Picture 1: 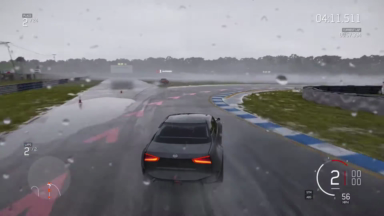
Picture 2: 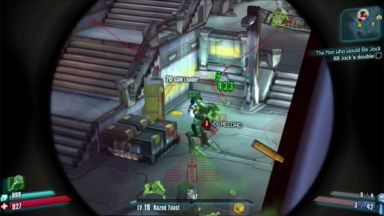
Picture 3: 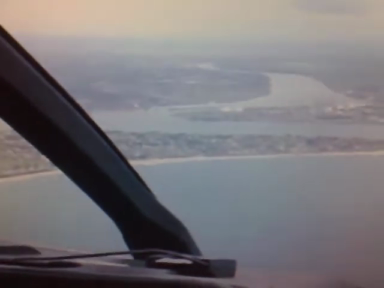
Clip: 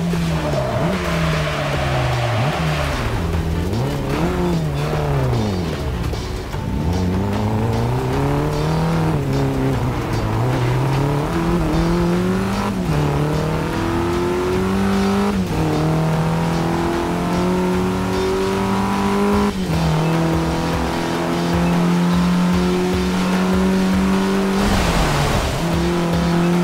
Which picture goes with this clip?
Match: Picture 1